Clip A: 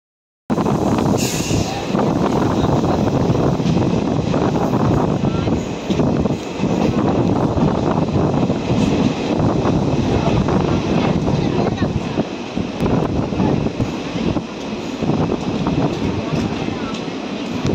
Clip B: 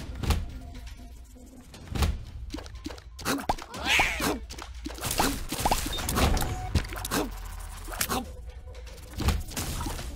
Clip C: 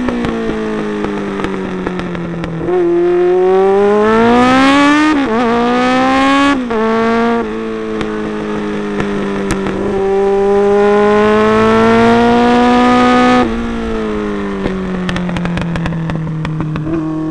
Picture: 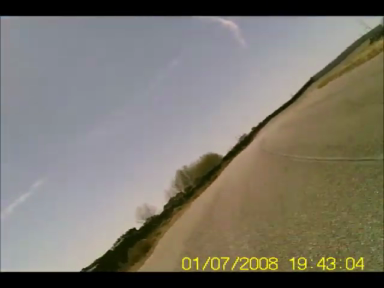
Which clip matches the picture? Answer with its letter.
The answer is C